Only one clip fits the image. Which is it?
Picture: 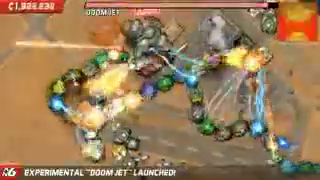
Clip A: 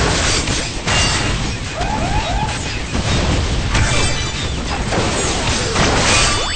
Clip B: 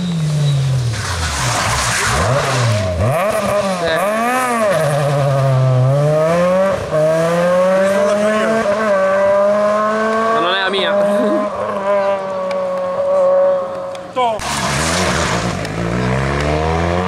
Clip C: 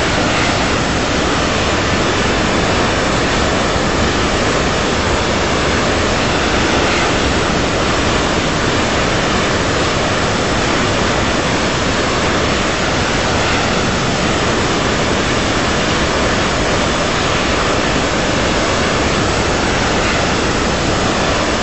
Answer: A